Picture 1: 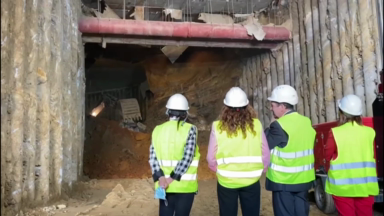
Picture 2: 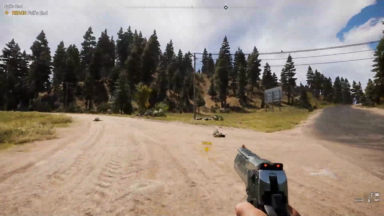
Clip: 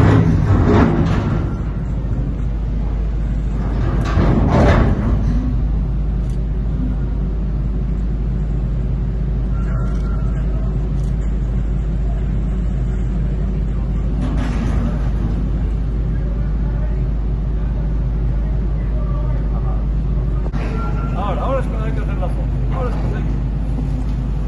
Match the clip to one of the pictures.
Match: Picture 1